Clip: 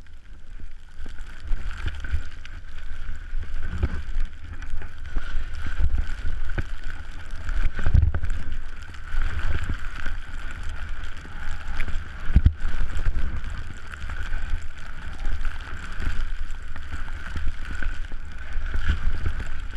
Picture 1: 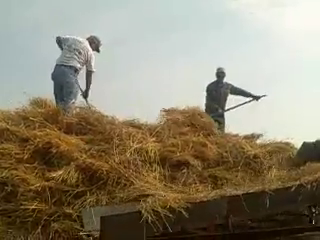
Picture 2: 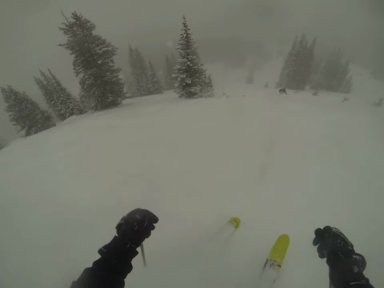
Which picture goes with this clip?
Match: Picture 2